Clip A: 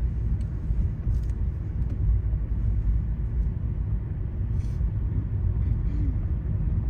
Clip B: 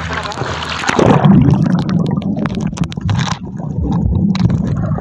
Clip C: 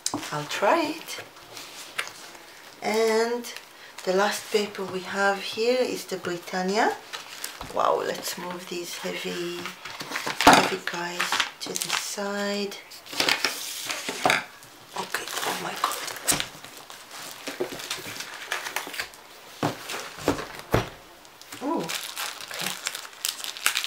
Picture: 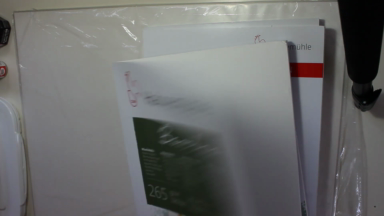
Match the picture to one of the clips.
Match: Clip C